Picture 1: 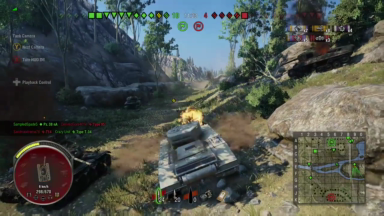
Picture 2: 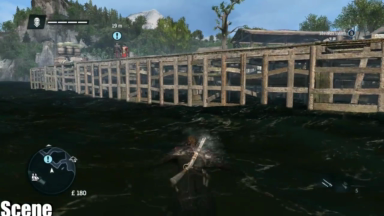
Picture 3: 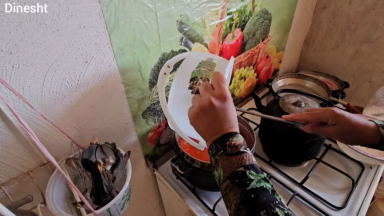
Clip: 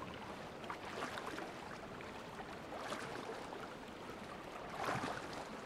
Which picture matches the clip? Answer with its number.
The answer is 2